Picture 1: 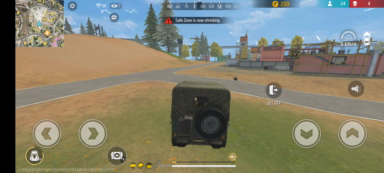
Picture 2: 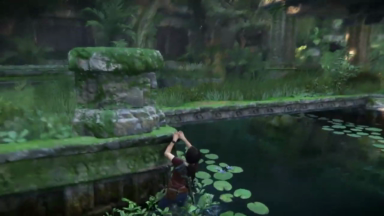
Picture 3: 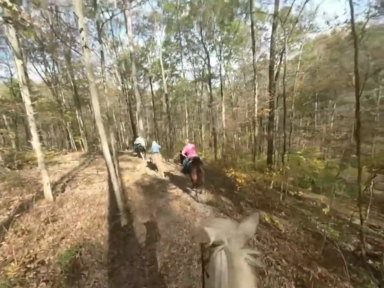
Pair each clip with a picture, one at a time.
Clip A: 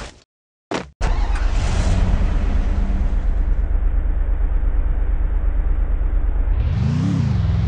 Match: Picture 1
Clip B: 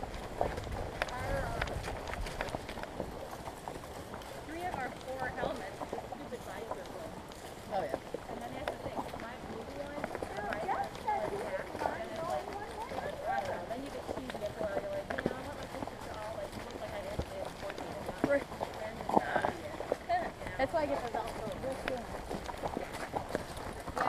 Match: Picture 3